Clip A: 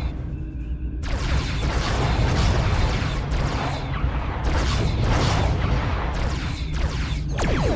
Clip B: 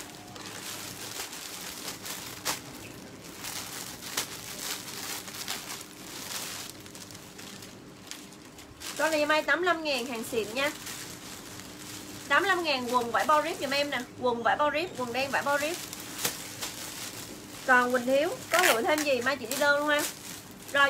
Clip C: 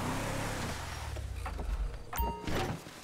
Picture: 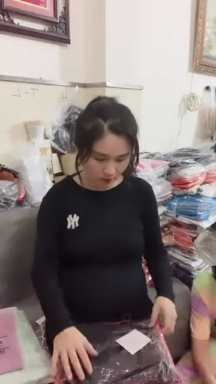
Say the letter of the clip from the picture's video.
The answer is B